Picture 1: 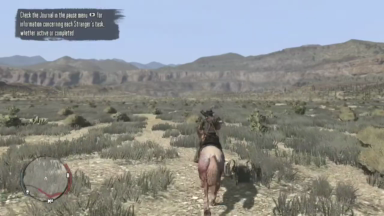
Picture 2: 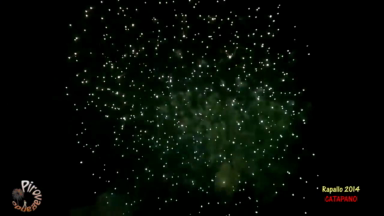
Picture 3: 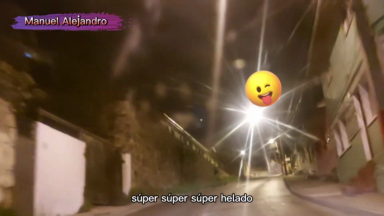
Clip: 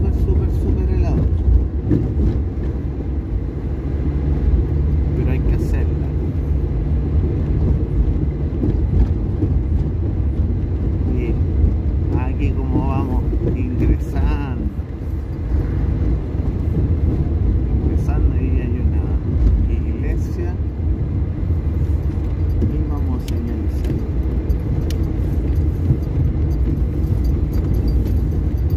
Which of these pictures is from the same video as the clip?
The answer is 3